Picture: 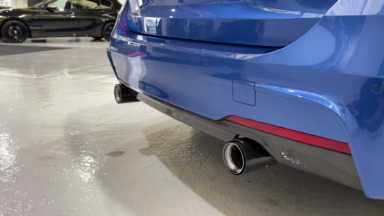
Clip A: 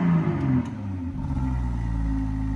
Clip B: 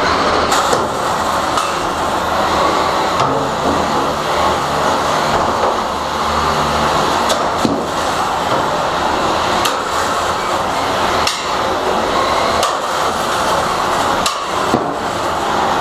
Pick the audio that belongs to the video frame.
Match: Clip A